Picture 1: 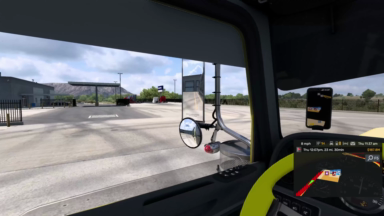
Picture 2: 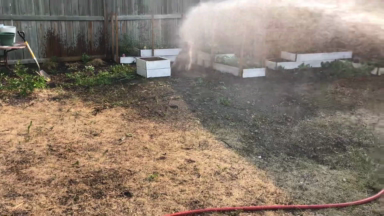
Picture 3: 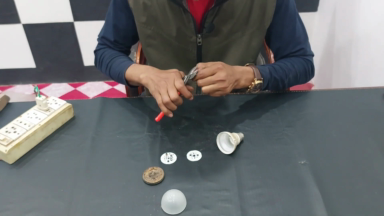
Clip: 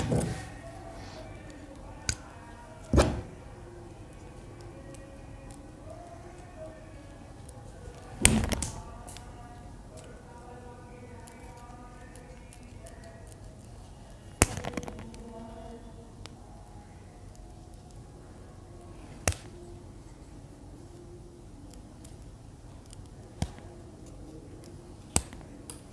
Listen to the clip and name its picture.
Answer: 3